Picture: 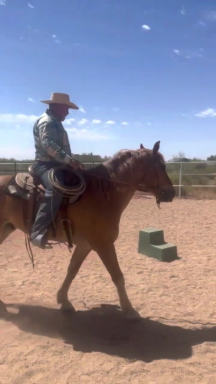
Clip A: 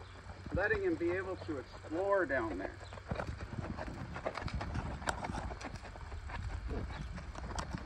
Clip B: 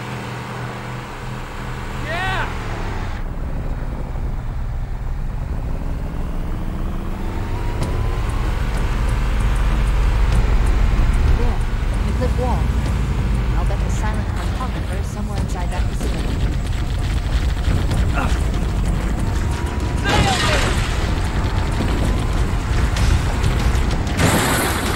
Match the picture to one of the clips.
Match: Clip A